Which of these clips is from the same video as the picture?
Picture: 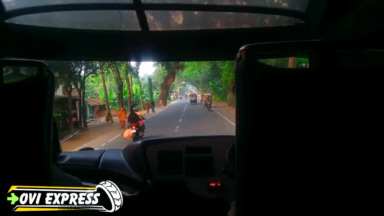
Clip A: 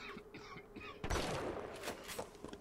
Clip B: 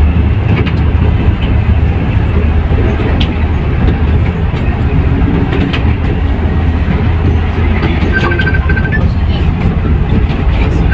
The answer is B